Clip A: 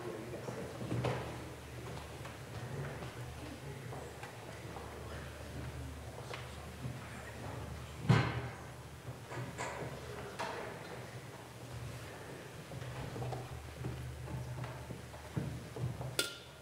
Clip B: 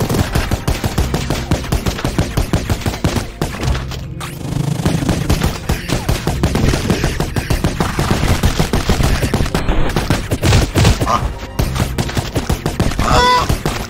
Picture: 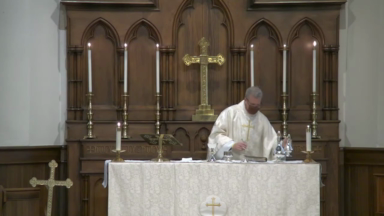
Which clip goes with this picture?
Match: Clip A